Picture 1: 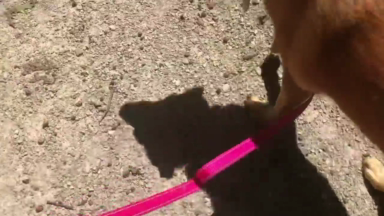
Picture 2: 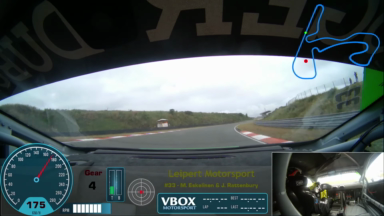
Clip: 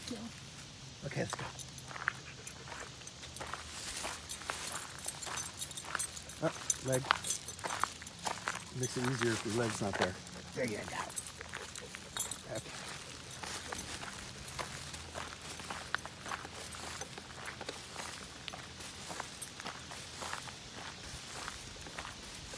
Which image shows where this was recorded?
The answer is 1